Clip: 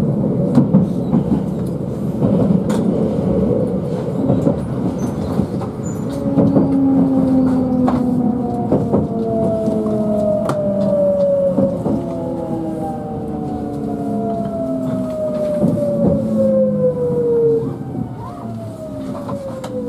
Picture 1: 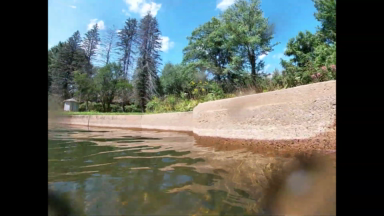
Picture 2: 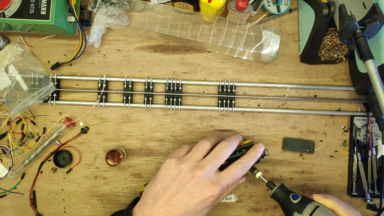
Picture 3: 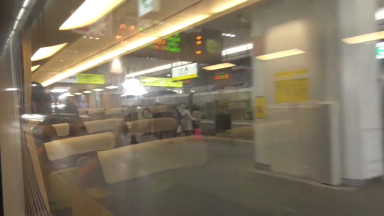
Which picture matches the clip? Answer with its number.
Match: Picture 3